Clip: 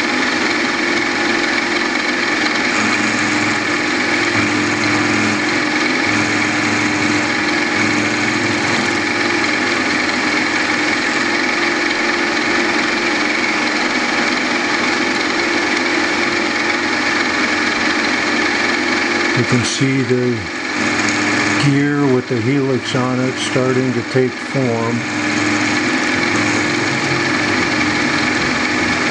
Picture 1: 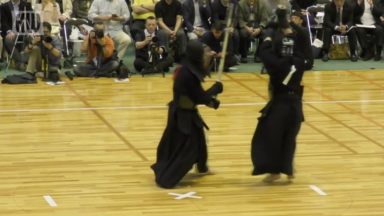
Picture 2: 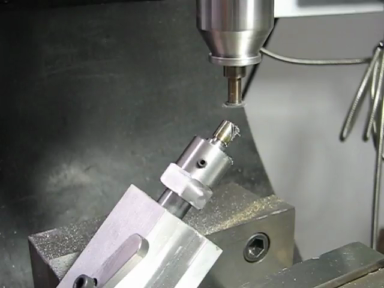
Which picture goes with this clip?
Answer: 2